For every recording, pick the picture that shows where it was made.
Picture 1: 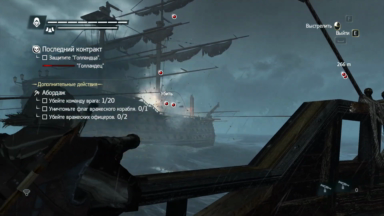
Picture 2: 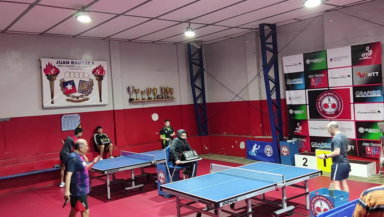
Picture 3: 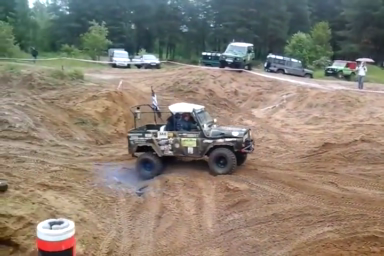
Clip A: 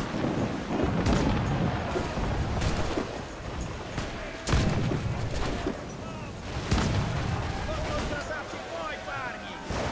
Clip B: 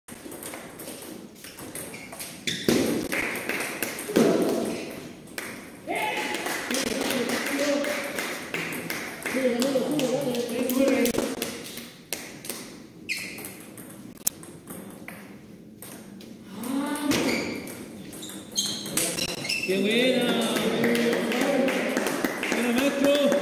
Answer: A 1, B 2